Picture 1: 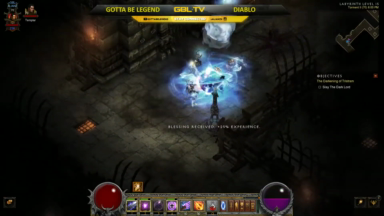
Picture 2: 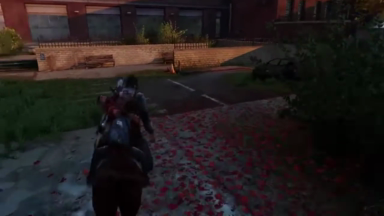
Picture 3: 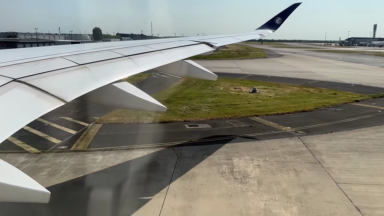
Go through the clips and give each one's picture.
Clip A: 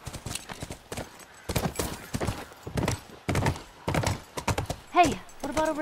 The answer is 2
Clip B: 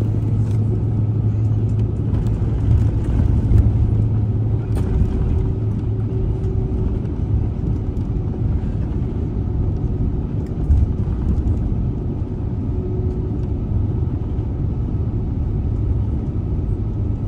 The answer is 3